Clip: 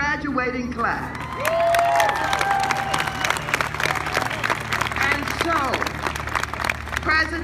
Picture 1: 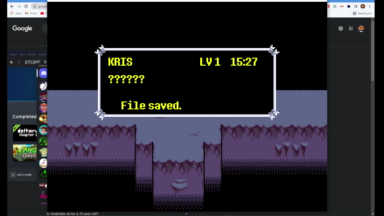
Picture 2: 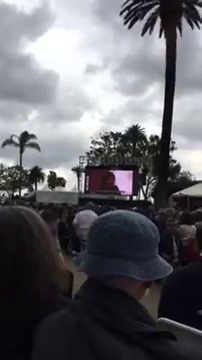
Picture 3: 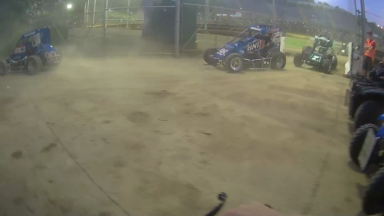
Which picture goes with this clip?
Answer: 2